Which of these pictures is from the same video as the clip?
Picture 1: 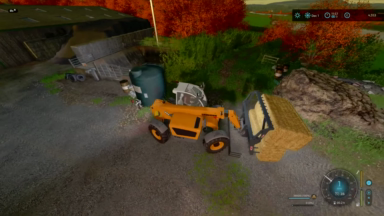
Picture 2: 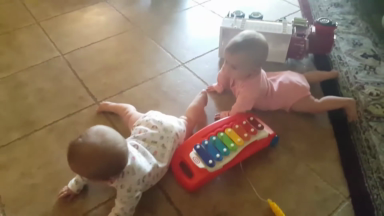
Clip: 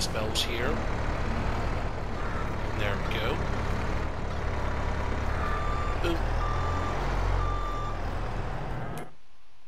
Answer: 1